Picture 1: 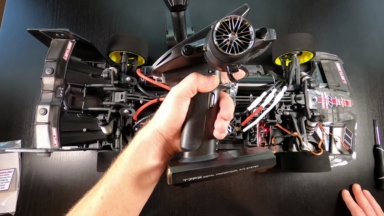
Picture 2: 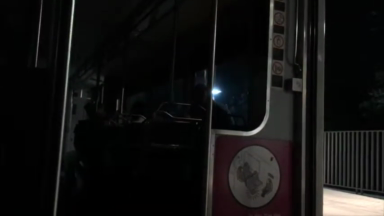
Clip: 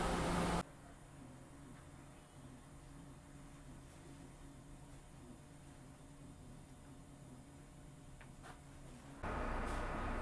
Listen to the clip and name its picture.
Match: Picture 2